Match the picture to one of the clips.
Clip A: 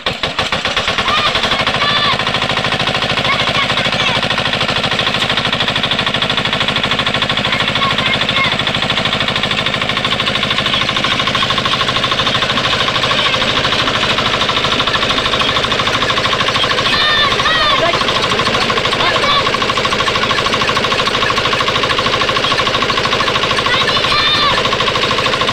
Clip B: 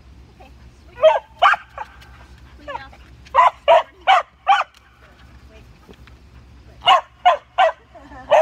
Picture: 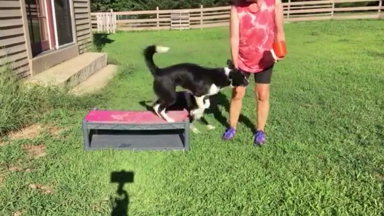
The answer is B